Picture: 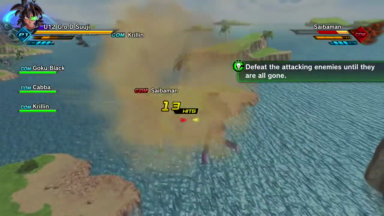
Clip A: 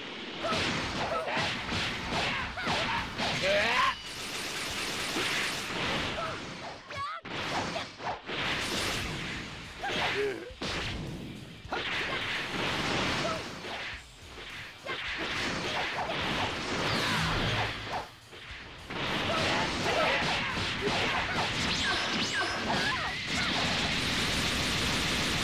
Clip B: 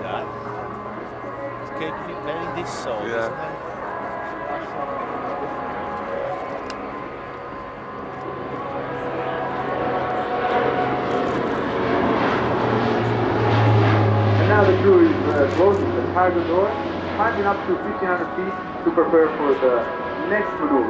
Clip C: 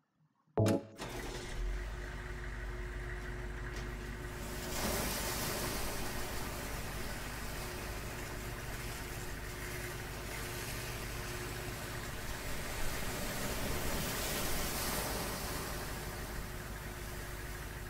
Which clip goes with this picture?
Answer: A